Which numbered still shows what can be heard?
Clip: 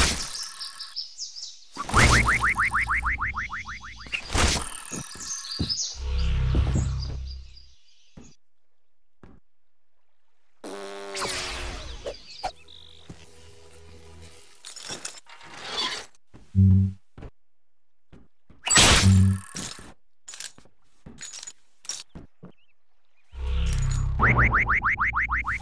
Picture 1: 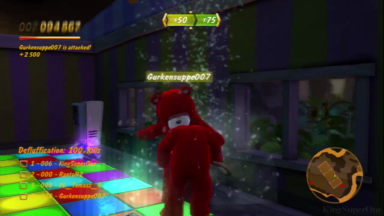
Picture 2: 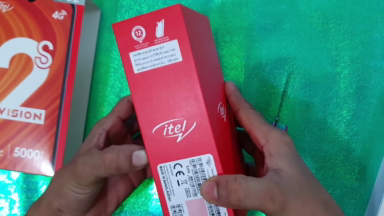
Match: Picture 1